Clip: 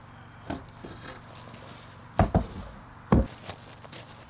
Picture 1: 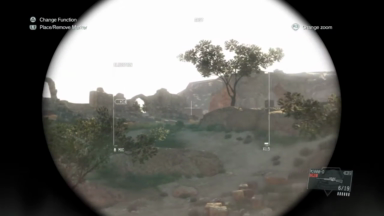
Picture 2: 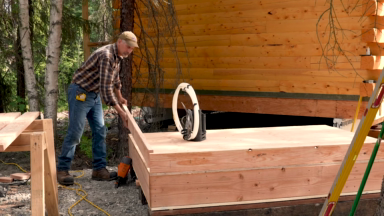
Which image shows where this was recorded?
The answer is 2